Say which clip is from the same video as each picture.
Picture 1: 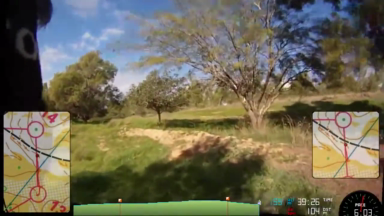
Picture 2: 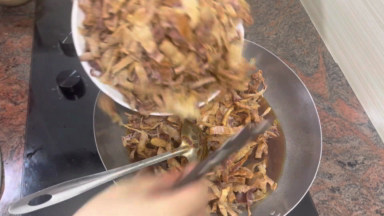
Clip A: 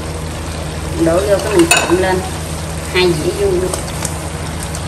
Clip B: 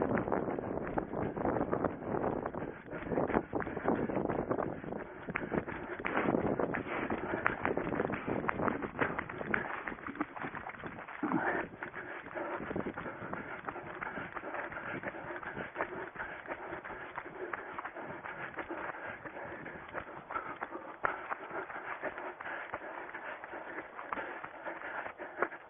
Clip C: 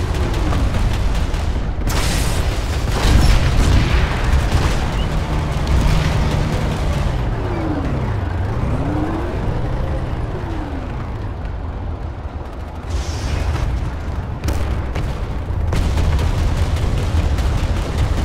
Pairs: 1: B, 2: A